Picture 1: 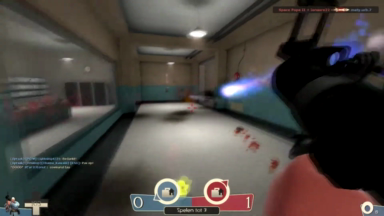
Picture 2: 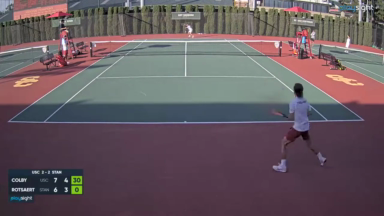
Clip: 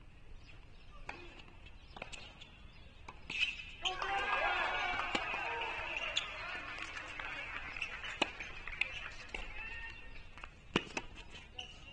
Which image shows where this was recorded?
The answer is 2